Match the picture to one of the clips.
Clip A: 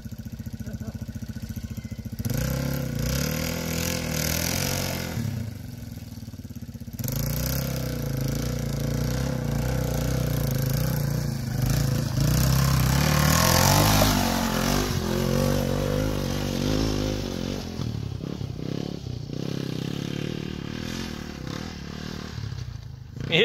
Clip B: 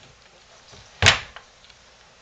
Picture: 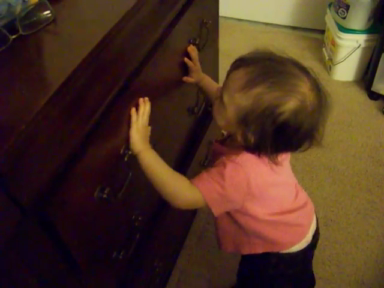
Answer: B